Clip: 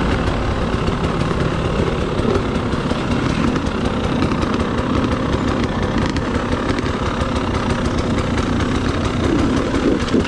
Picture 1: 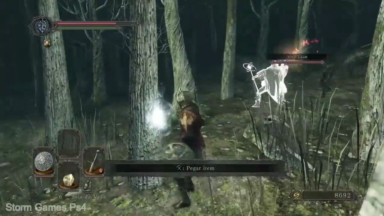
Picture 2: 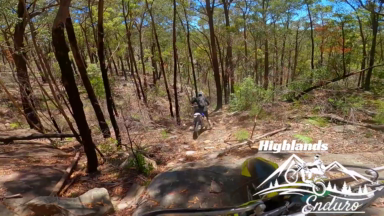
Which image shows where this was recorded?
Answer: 2